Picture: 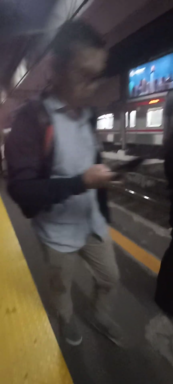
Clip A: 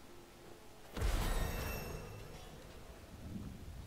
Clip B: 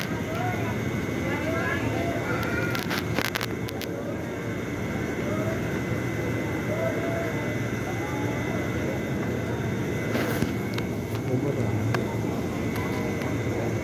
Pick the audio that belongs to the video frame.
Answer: B